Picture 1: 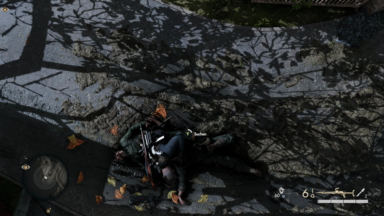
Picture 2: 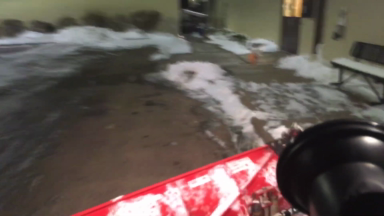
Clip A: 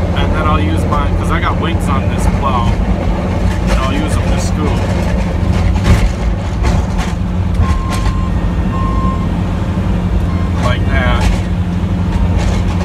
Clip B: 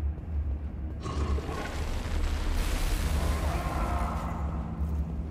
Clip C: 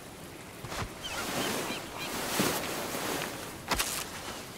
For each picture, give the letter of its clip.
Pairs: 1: C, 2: A